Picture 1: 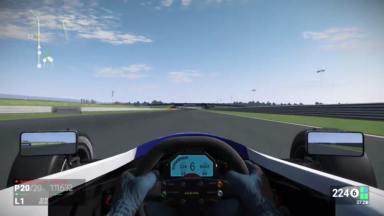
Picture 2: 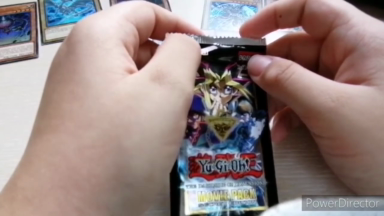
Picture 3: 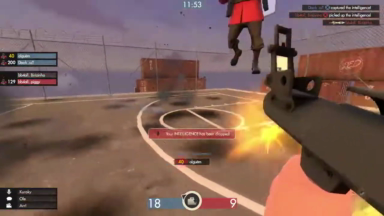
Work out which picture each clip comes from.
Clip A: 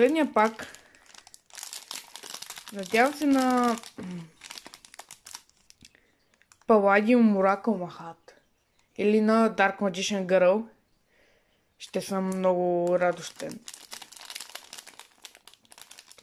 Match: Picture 2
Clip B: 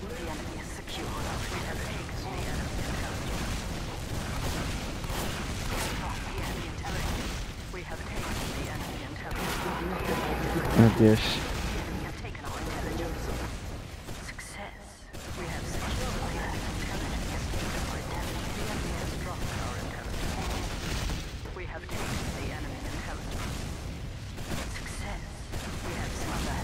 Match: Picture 3